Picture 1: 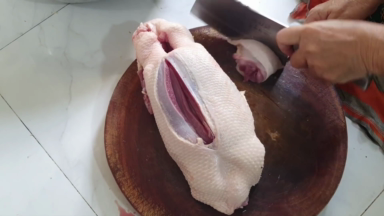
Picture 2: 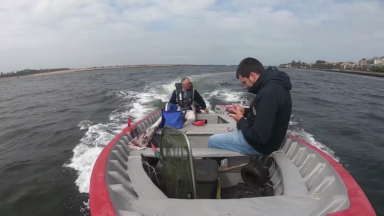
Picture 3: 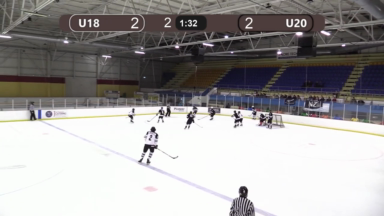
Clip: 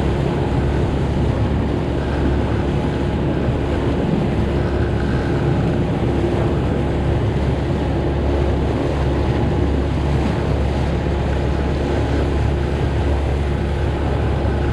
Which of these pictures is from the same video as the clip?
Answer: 2